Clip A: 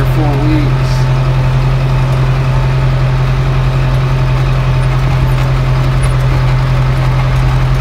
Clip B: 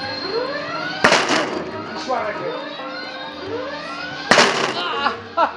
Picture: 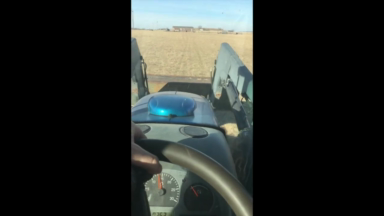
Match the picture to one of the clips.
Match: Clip A